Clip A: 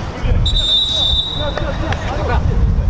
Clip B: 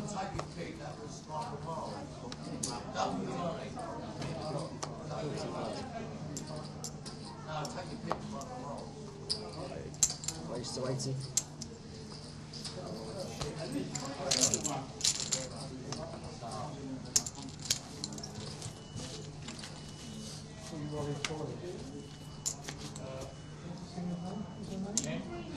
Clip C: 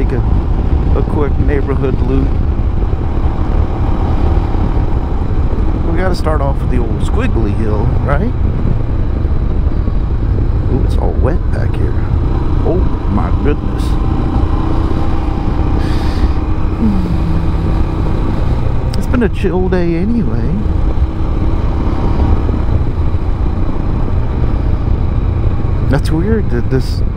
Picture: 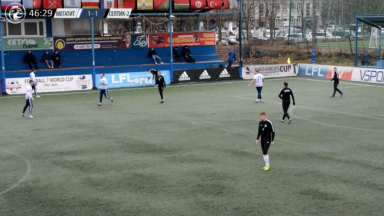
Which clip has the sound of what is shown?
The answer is A